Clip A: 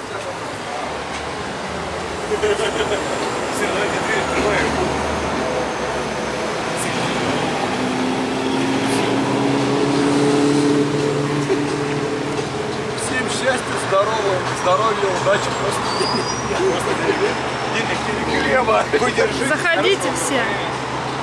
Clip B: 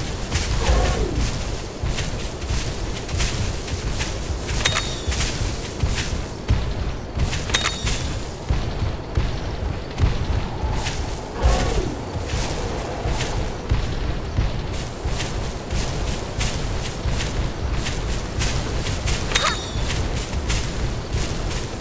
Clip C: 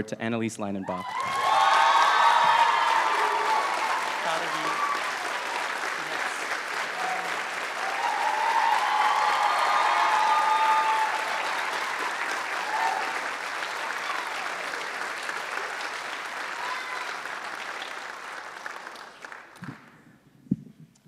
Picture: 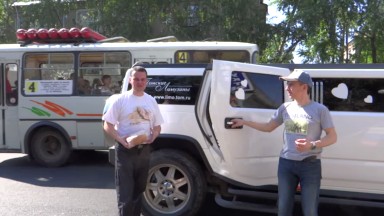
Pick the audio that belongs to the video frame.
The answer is A